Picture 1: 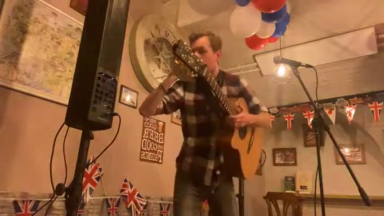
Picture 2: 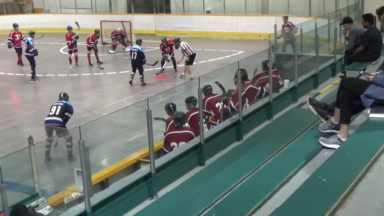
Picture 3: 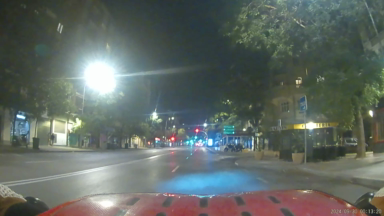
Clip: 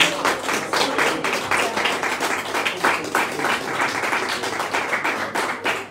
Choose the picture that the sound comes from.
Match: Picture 1